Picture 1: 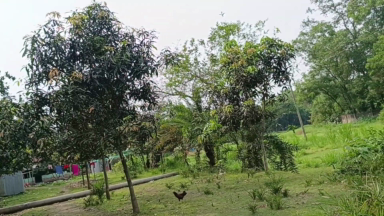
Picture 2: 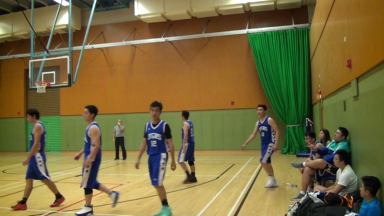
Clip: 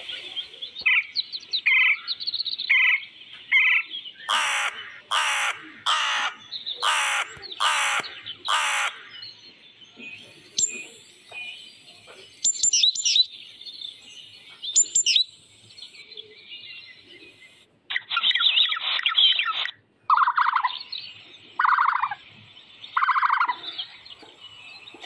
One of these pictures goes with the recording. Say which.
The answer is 1